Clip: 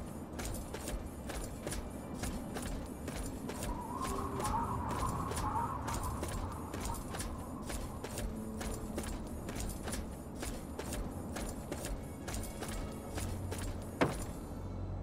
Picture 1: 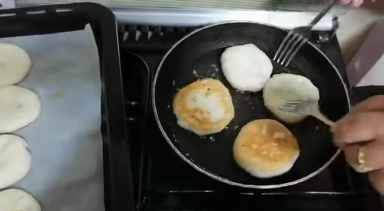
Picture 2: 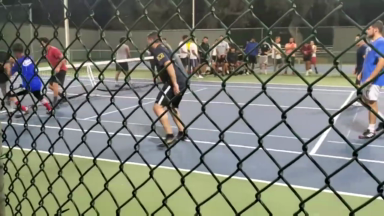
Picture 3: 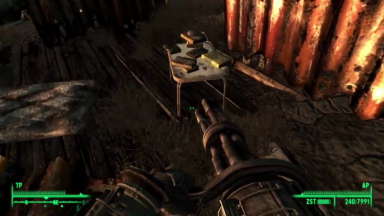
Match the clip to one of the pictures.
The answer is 3